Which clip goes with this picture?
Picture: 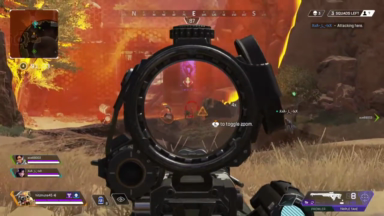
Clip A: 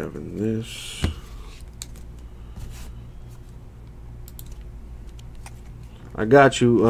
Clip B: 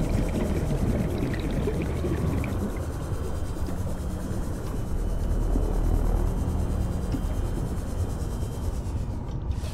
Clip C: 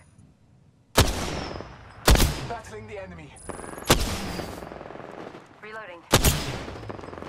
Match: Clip C